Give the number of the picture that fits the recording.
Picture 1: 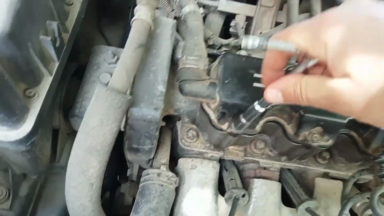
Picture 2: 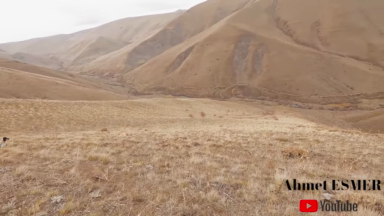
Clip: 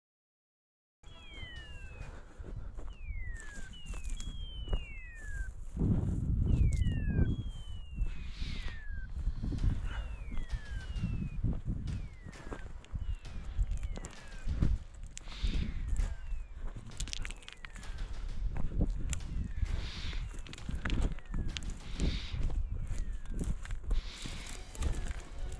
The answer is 2